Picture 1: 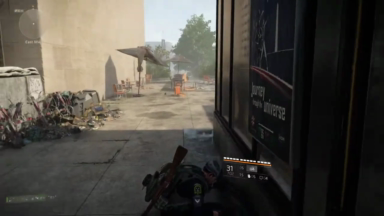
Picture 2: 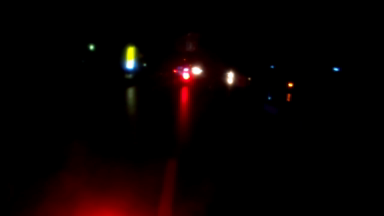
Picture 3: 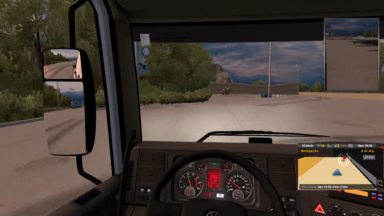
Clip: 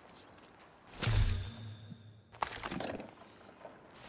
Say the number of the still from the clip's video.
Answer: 1